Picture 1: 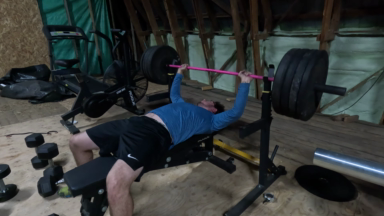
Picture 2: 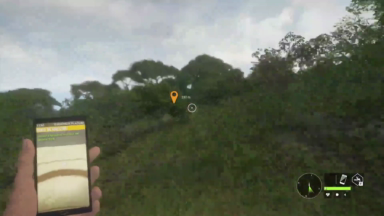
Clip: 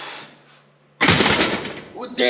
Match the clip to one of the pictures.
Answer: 1